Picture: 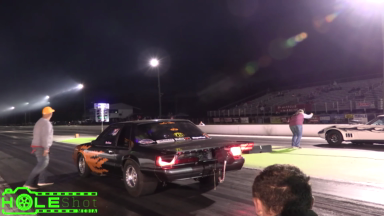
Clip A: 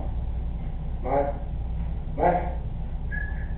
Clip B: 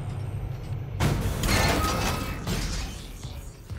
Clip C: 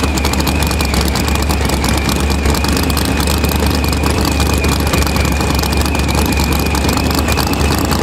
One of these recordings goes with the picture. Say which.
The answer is C